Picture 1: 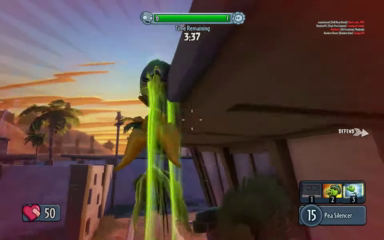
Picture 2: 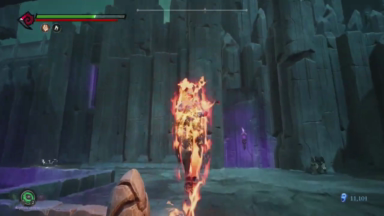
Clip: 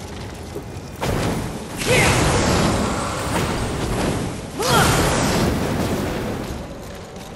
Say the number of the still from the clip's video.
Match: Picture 2